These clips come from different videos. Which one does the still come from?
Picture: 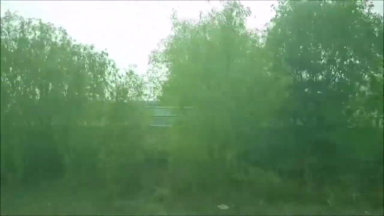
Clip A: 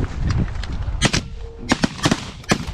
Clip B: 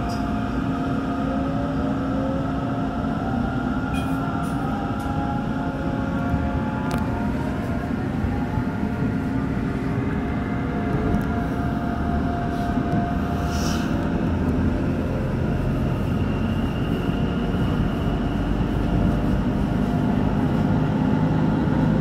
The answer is B